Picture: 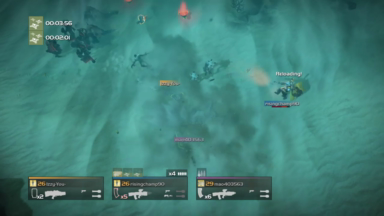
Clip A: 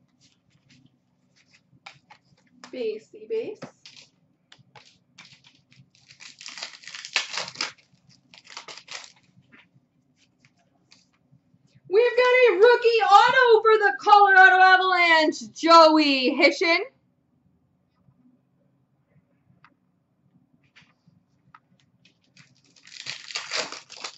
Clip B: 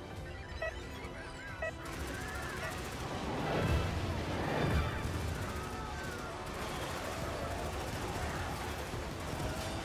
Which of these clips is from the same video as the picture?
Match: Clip B